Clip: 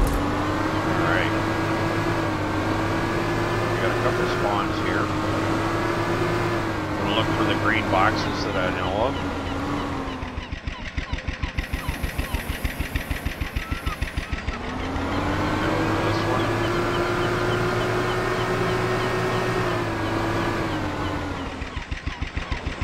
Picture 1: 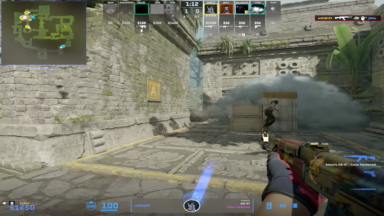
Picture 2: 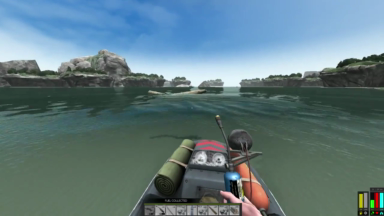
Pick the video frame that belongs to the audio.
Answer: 2